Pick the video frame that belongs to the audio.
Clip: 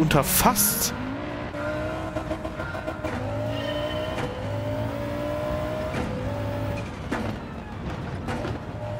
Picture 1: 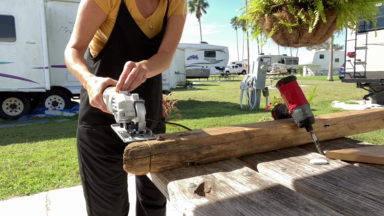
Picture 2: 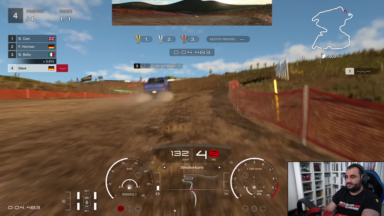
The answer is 2